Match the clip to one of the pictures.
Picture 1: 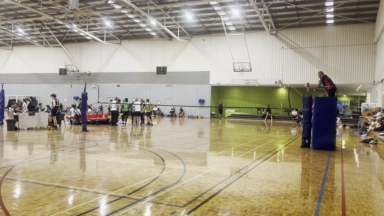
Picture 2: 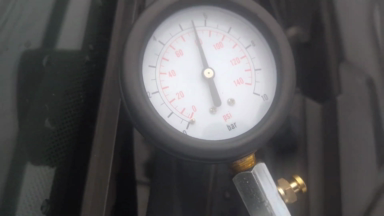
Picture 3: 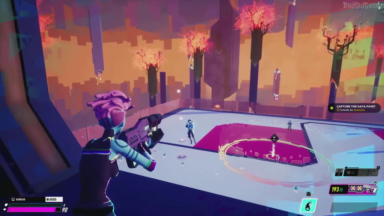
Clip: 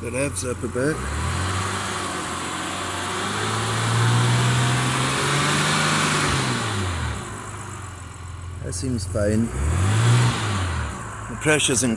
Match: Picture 2